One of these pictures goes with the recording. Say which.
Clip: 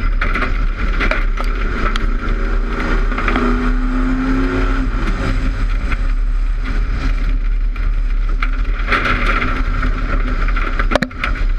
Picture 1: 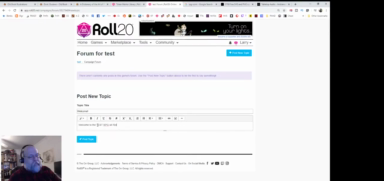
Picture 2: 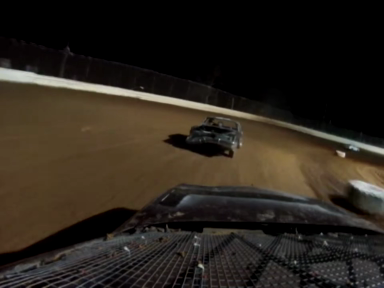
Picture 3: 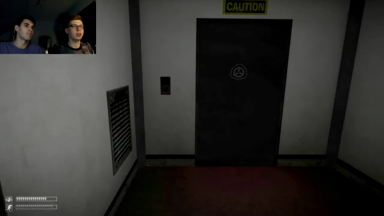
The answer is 2